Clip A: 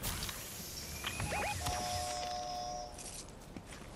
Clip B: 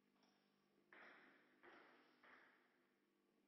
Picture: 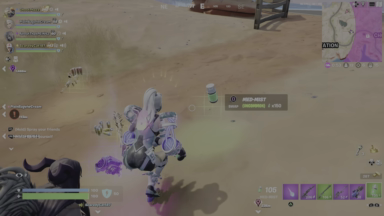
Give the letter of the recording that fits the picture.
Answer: A